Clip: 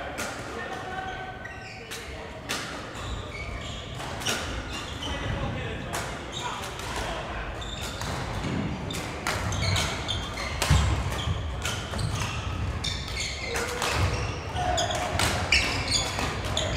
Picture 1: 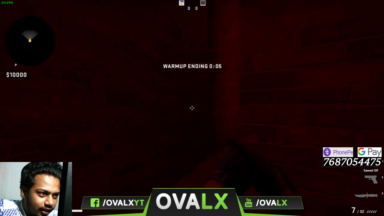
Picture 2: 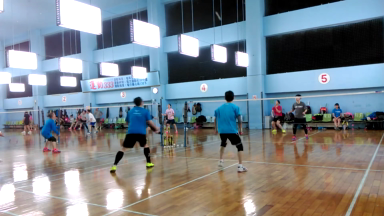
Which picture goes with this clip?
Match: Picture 2